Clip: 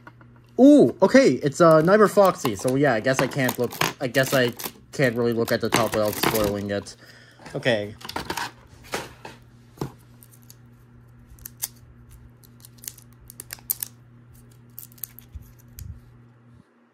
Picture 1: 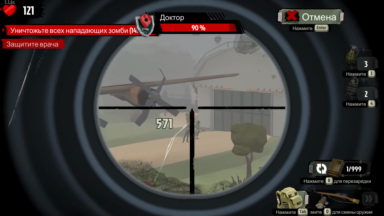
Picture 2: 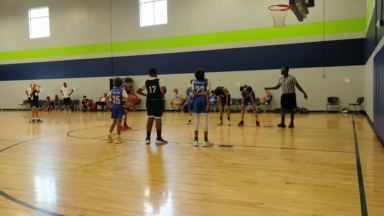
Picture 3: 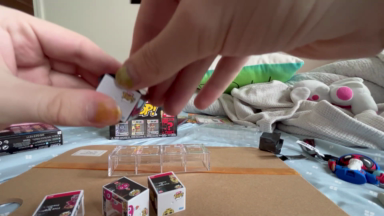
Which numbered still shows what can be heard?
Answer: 3